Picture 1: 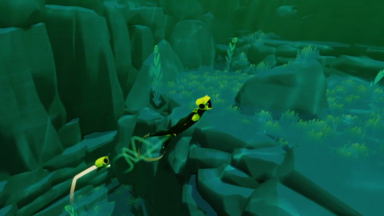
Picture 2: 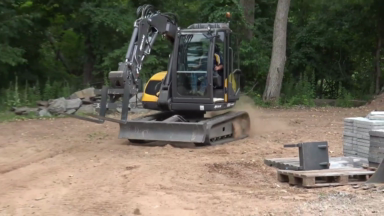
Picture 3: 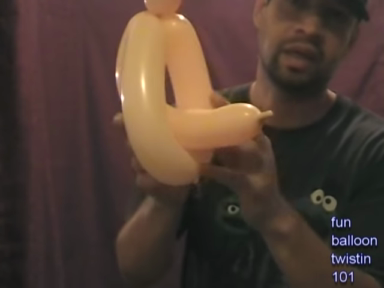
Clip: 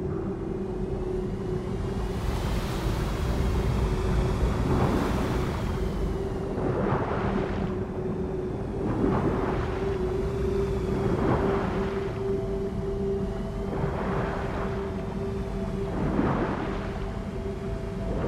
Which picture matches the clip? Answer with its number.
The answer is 1